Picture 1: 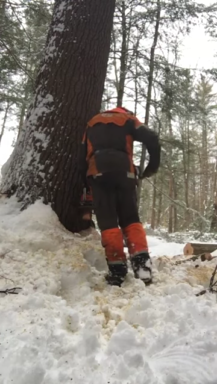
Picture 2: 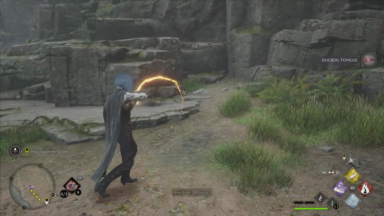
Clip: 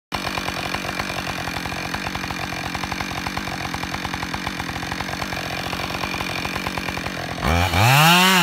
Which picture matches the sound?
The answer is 1